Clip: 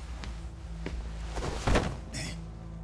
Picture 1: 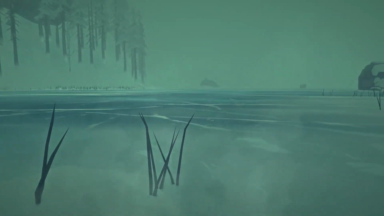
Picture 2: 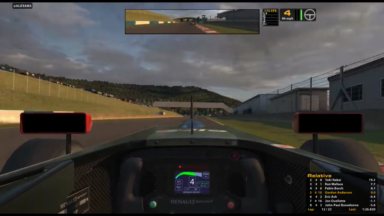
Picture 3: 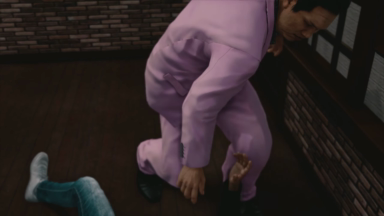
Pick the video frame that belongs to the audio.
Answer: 3